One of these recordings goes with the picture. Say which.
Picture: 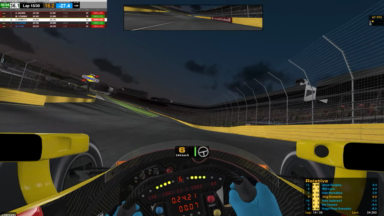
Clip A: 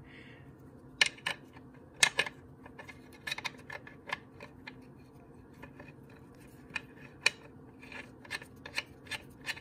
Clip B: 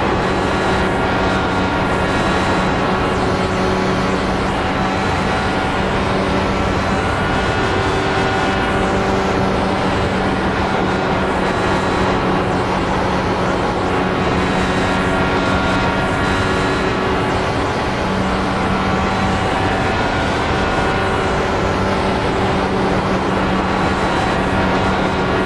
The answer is B